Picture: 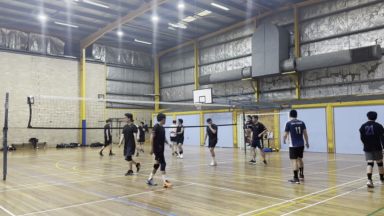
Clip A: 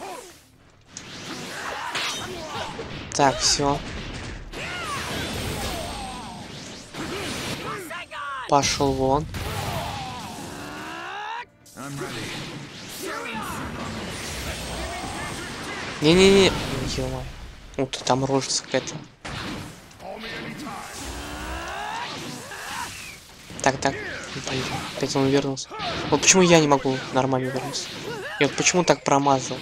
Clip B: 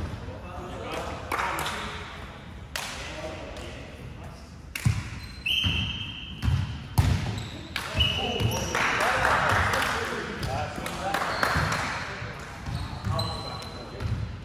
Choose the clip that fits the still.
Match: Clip B